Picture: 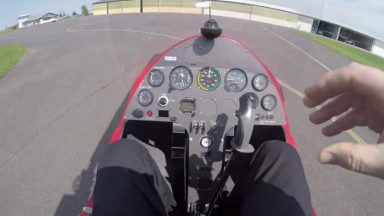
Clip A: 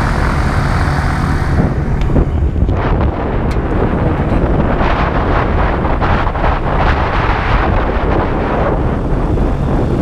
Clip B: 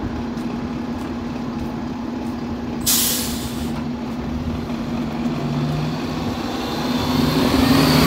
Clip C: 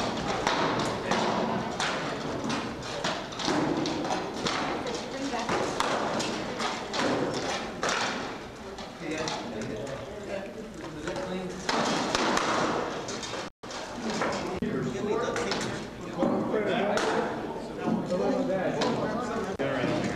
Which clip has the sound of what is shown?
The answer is A